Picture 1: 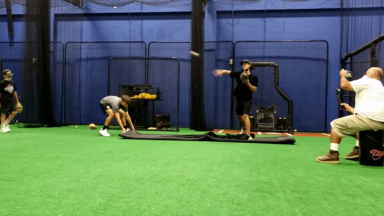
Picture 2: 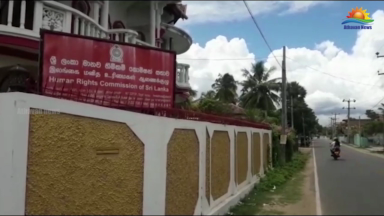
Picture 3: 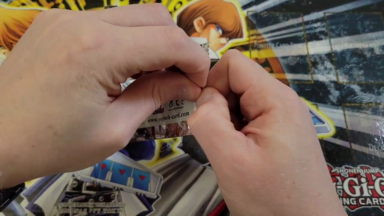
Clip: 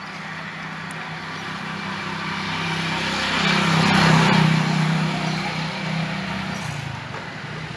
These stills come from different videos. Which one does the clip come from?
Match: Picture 2